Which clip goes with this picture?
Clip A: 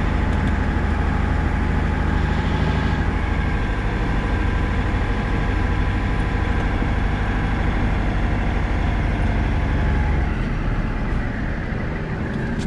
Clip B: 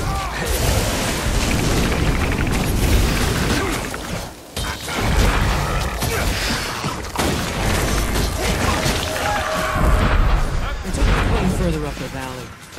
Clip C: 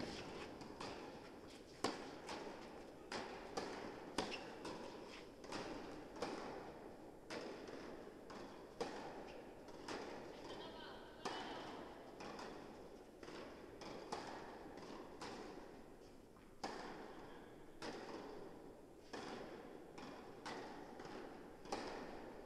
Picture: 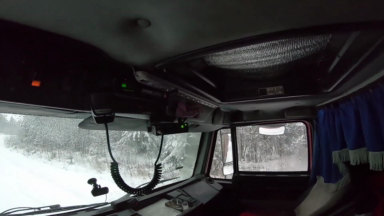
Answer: A